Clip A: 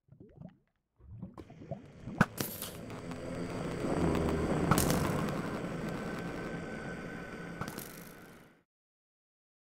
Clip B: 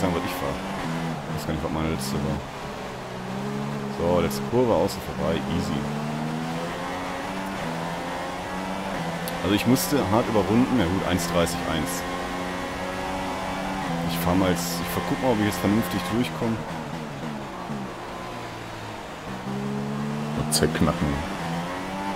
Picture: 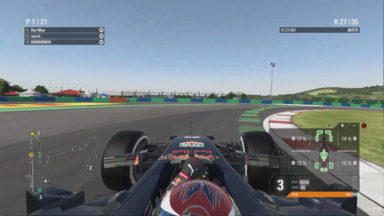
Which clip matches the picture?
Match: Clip B